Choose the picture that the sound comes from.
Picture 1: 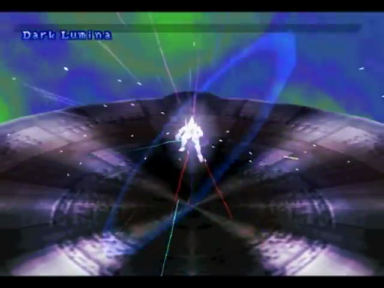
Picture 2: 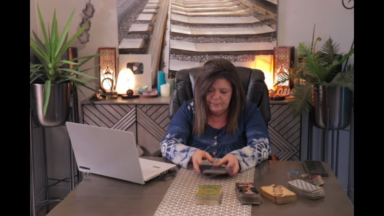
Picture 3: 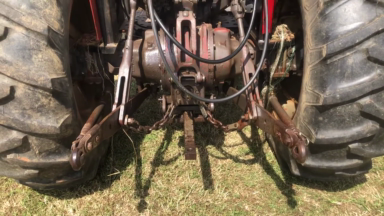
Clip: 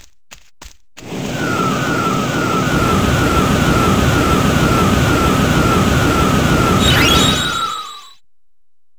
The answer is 1